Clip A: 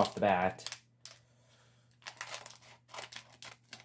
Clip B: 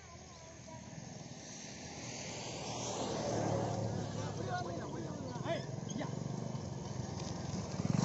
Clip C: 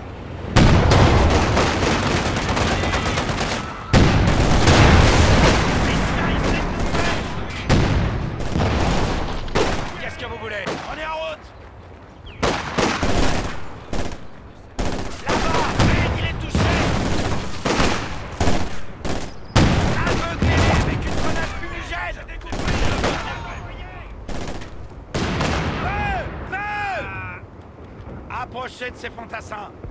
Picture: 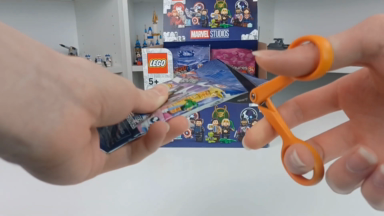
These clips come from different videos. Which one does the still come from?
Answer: A